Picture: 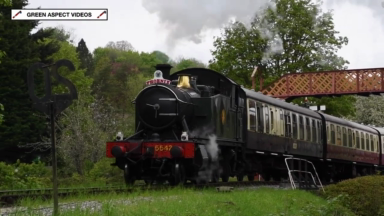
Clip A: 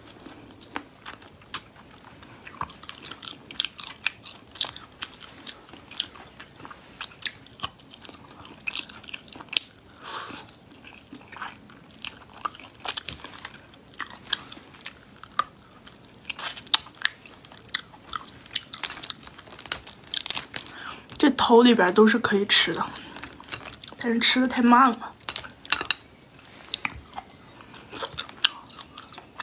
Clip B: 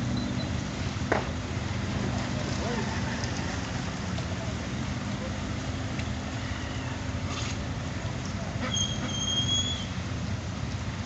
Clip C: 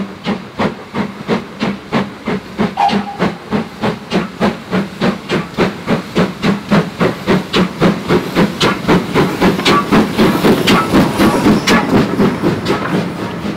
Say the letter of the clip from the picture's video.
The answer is C